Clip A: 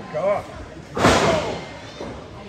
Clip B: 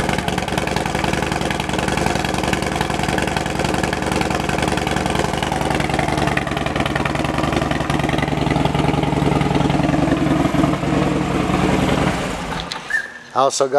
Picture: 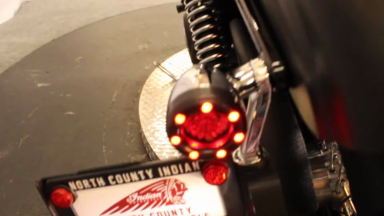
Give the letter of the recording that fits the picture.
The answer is B